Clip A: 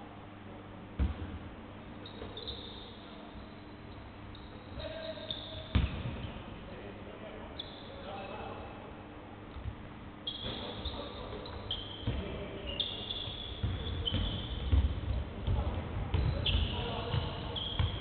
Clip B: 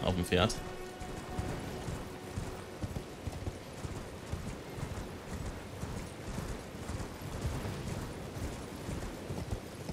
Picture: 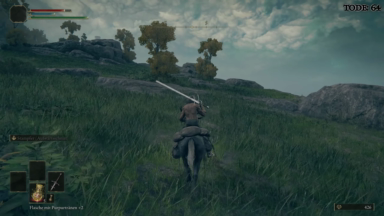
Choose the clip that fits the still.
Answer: B